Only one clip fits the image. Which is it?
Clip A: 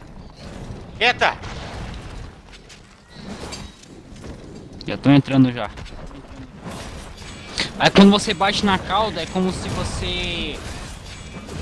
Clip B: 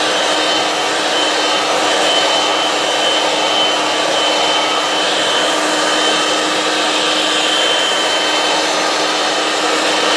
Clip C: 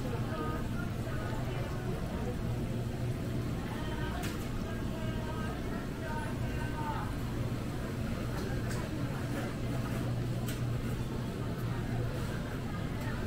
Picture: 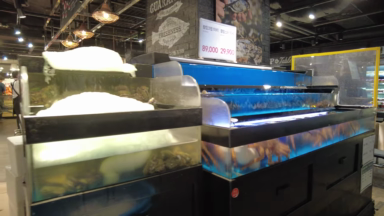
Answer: C